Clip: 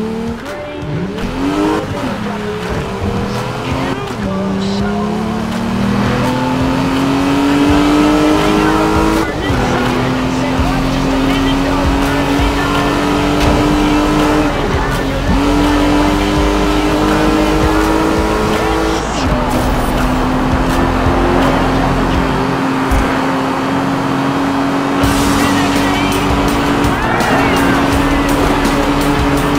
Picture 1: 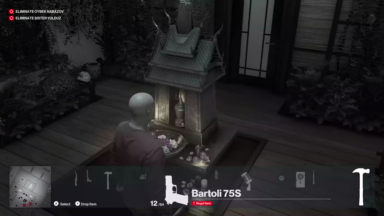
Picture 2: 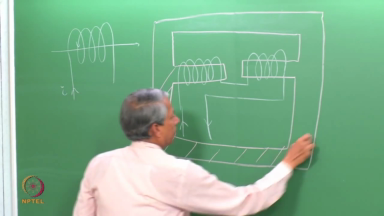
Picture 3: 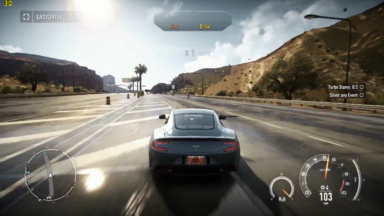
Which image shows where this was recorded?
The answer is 3